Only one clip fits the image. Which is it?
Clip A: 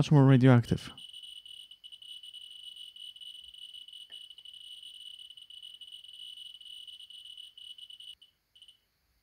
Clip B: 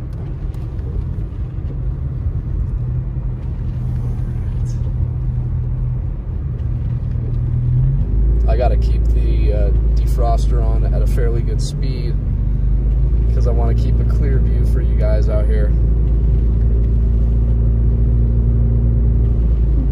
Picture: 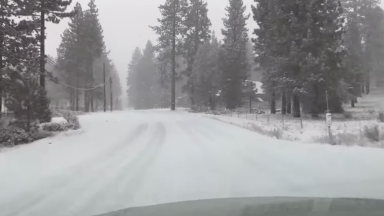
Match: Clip B